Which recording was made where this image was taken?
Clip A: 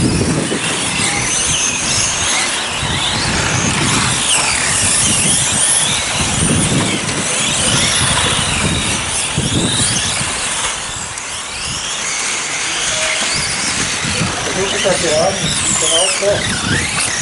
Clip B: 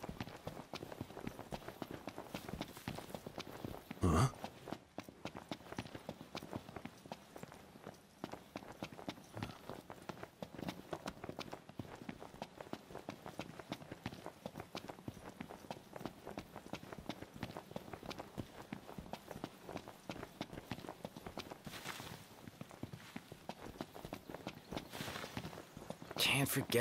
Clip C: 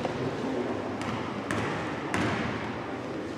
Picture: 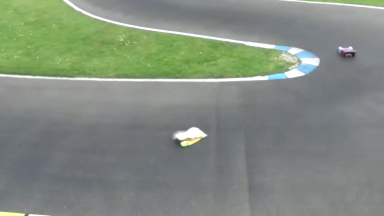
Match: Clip A